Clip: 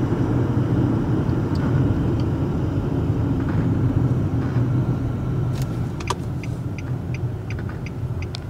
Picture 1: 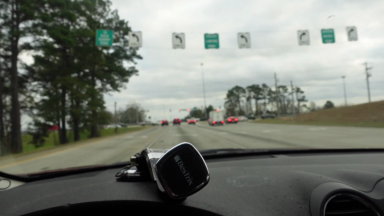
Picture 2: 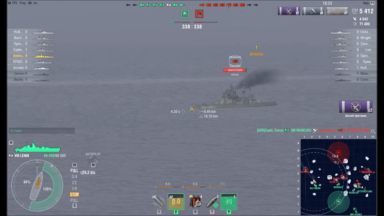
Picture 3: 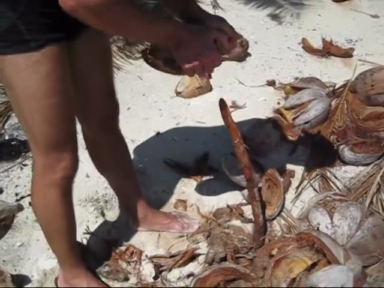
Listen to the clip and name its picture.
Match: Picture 1